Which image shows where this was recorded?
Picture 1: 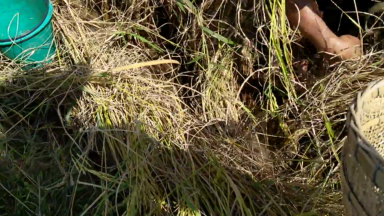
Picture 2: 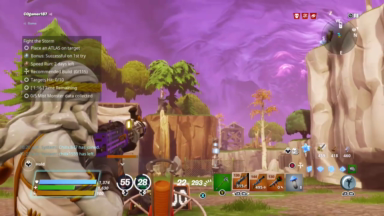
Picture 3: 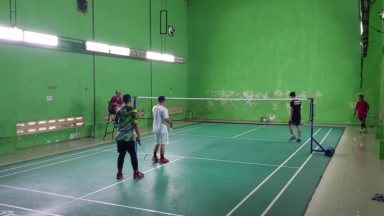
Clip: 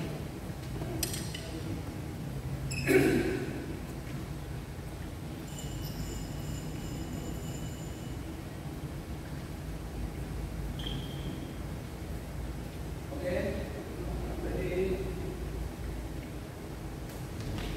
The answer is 3